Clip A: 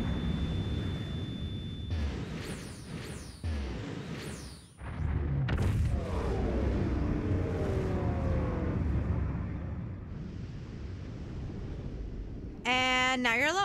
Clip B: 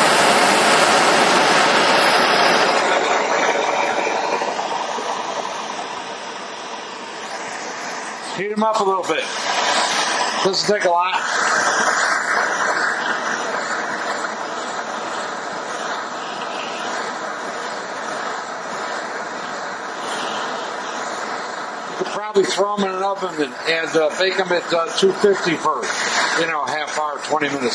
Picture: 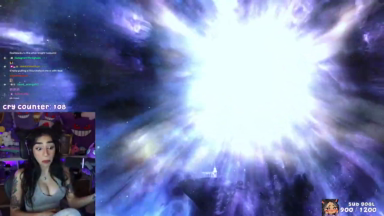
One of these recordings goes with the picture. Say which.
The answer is A